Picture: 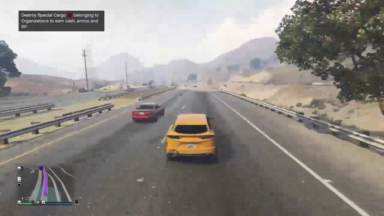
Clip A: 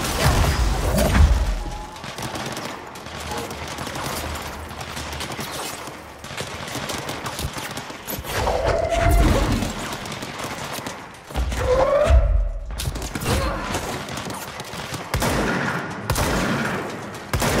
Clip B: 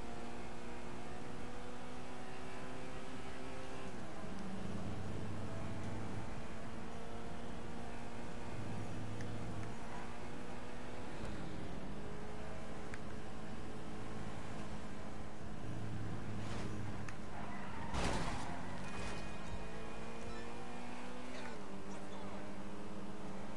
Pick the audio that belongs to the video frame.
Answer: B